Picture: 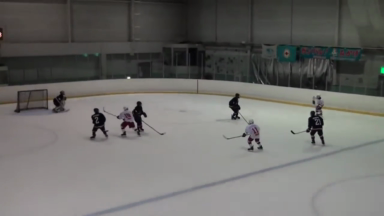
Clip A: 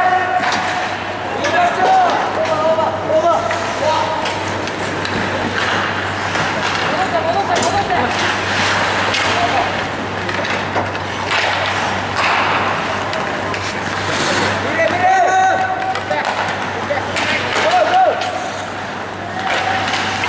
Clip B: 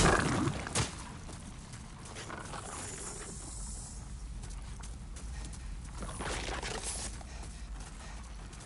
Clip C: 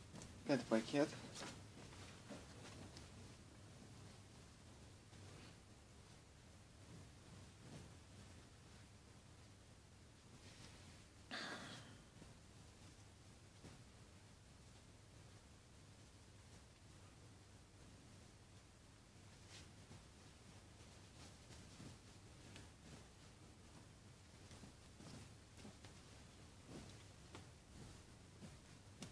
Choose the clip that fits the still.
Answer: A